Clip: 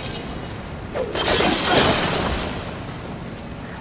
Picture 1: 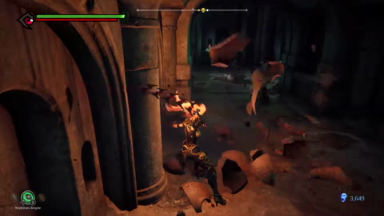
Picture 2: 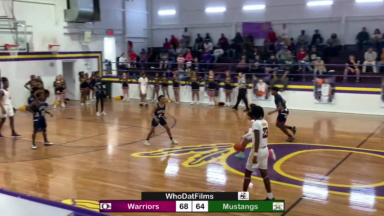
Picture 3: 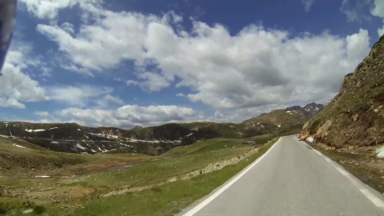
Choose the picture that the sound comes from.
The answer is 1